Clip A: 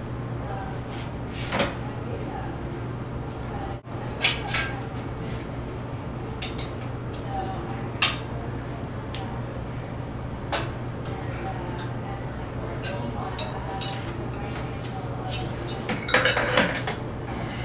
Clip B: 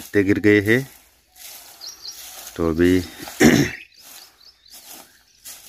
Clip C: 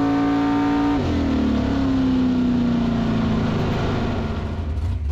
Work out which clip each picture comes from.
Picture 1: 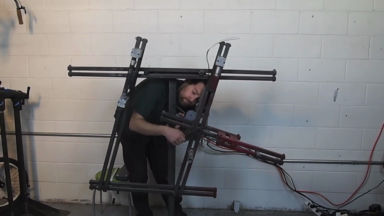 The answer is A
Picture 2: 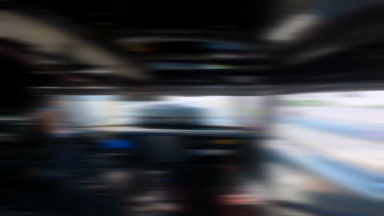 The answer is C